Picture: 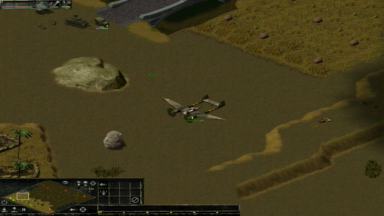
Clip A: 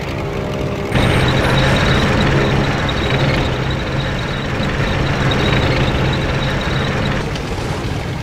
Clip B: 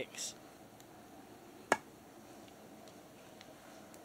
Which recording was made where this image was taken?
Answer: A